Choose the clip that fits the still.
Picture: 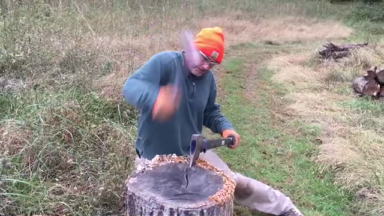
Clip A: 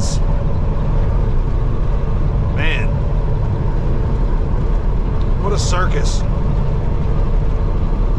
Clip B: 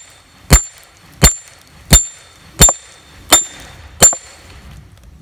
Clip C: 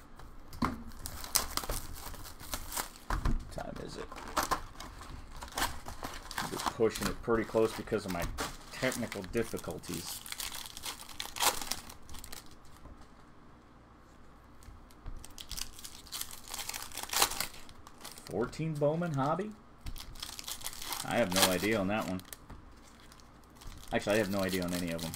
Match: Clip B